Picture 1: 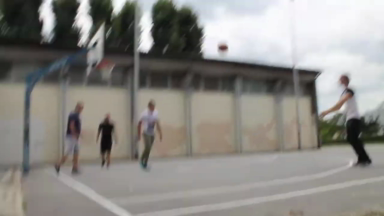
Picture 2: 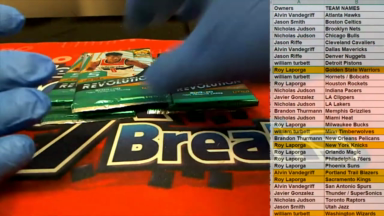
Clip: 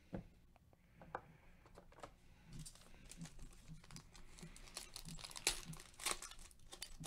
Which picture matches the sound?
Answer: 2